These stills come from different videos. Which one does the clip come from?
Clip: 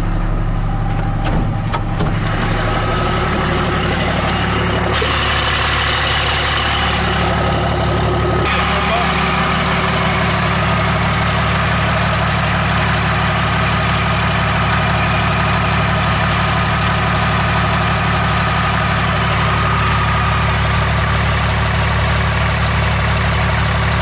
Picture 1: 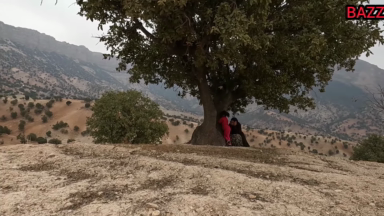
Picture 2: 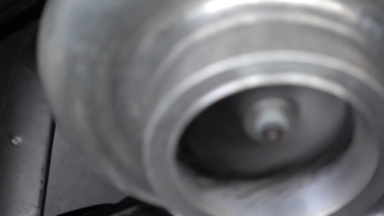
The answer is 2